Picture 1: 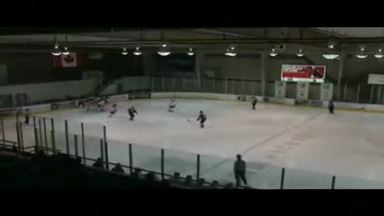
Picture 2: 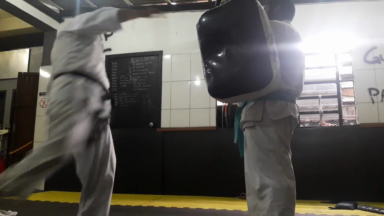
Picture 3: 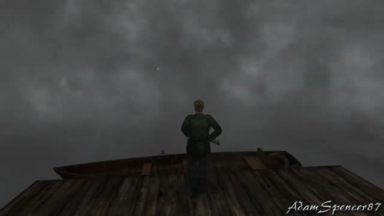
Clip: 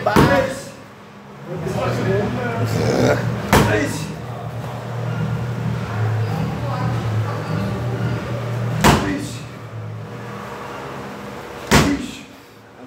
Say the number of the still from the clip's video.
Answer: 2